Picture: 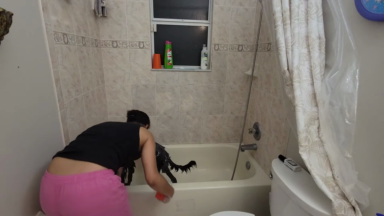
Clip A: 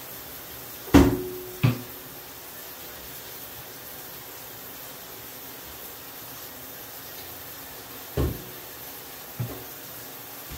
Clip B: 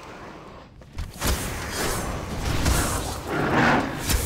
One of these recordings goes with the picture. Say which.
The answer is A